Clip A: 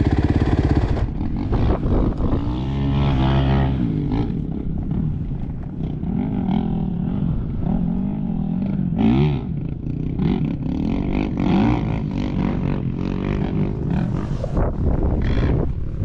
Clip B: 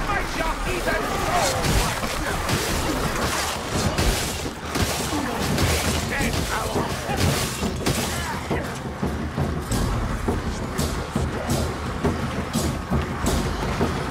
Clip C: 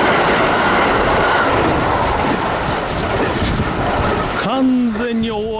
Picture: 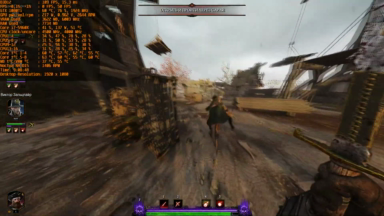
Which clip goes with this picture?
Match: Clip B